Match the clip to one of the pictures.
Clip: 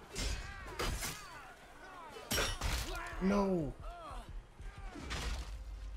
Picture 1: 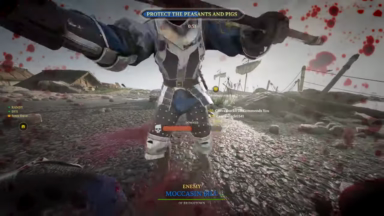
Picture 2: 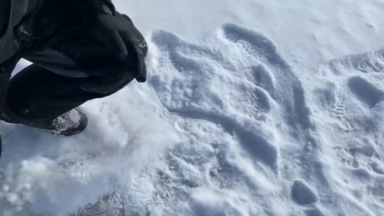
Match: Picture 1